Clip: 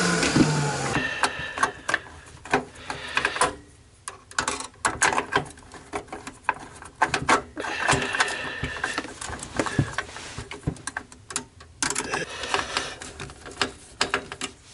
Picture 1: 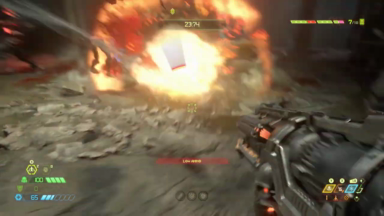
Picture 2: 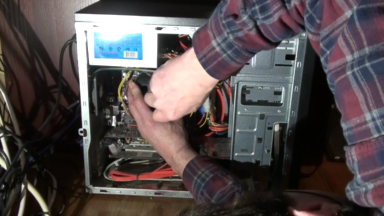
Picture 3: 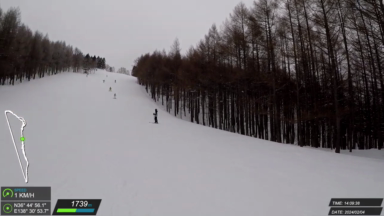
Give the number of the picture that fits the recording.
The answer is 2